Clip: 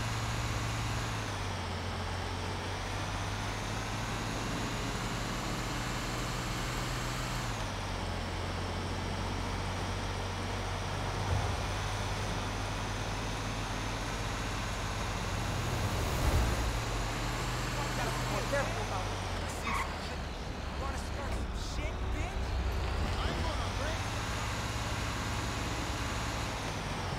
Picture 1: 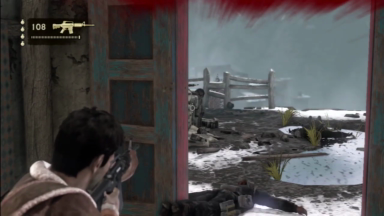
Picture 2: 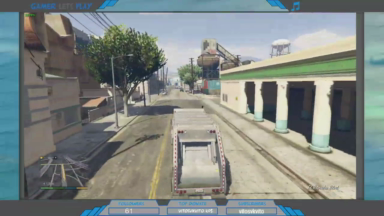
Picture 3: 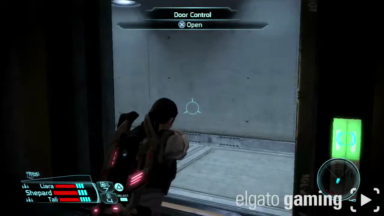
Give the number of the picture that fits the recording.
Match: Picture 2